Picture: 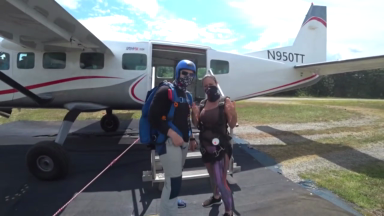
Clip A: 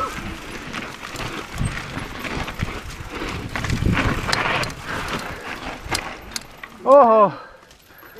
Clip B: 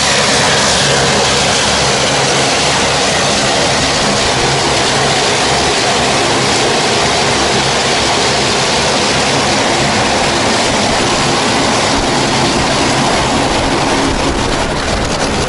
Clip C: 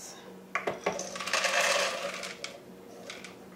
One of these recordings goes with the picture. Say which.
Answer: B